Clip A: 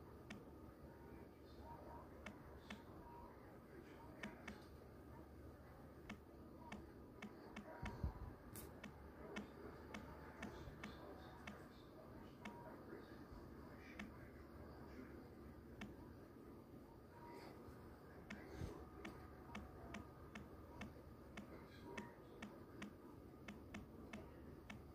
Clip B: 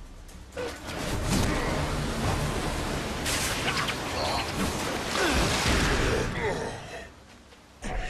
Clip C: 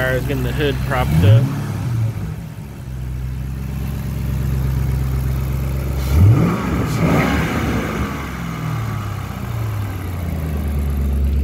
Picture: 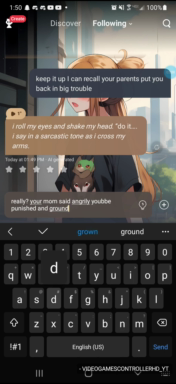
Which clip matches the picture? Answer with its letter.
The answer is A